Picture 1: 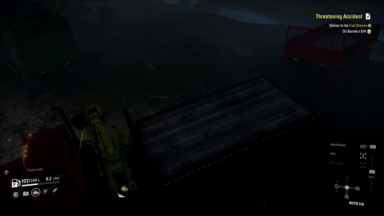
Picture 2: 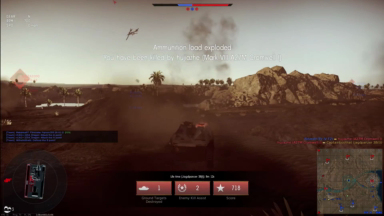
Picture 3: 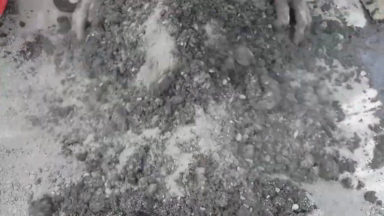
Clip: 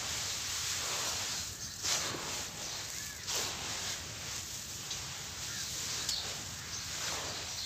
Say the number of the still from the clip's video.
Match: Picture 3